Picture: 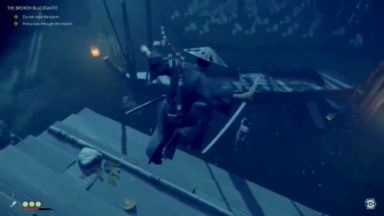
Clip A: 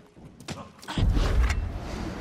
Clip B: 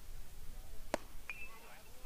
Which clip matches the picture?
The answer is A